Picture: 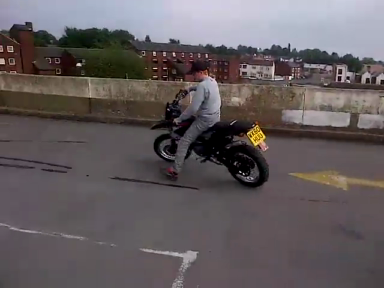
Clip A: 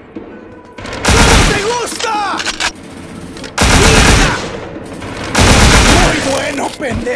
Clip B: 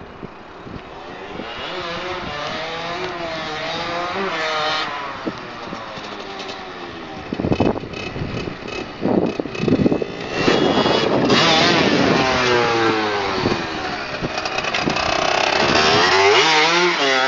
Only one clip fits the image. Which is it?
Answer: B